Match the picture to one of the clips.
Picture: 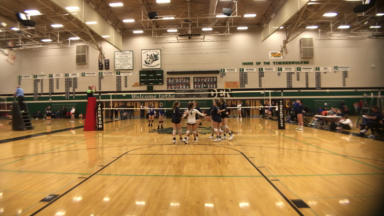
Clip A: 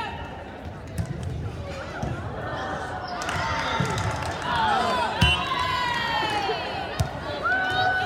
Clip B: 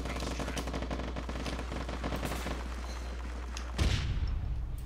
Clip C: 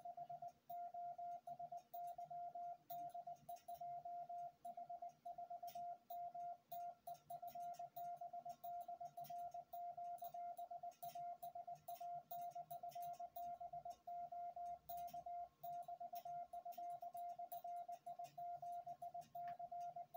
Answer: A